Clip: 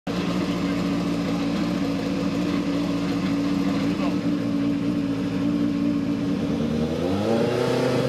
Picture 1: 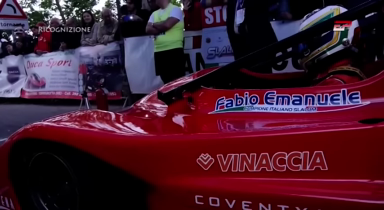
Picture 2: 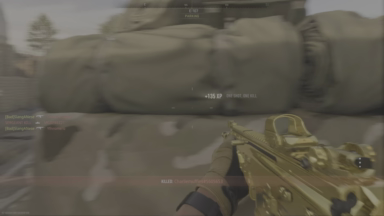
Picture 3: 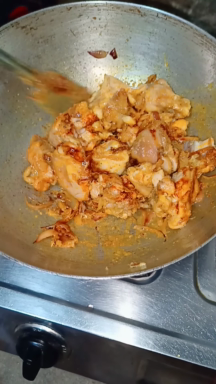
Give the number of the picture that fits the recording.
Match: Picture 1